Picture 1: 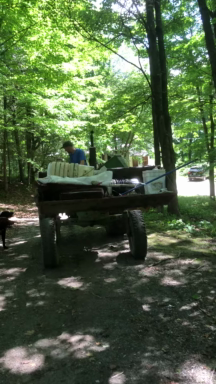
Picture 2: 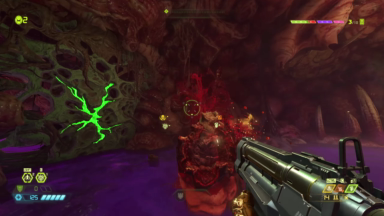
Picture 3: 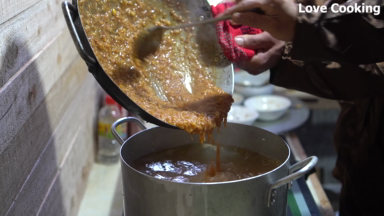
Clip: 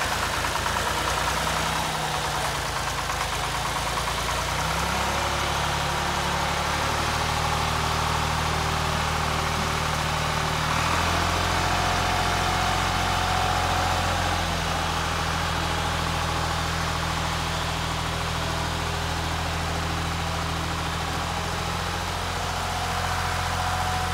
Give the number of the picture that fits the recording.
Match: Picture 1